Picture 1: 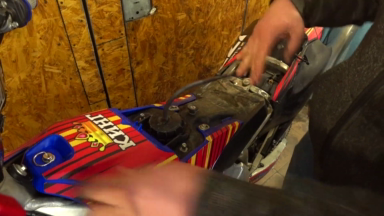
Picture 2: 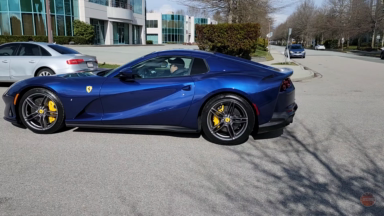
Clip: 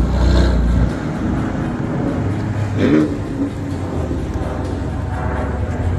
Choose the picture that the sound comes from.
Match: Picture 2